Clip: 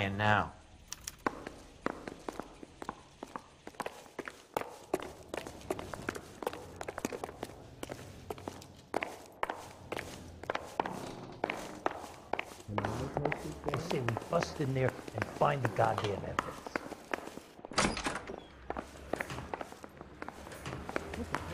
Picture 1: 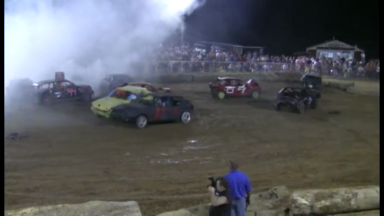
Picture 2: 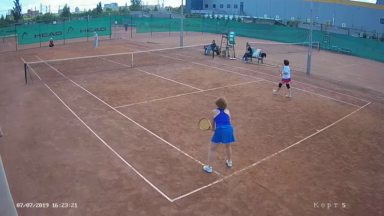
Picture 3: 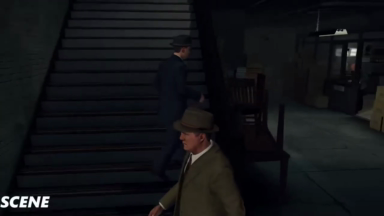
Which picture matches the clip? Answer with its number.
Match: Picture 3